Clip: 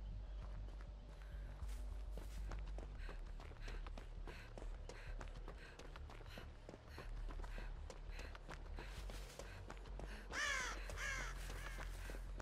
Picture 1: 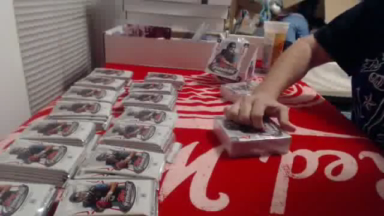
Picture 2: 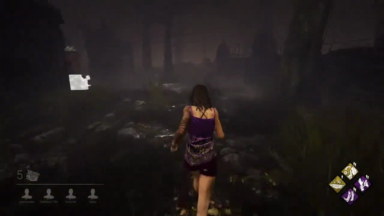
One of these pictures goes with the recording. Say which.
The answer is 2